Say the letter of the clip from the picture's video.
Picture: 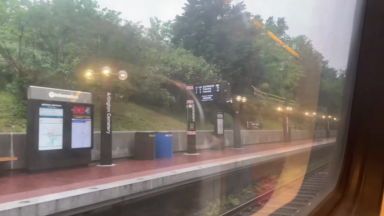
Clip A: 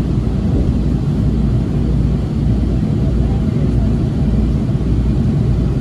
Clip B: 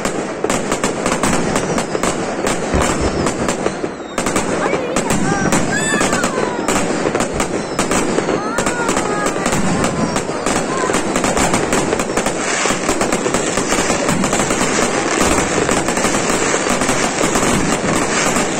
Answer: A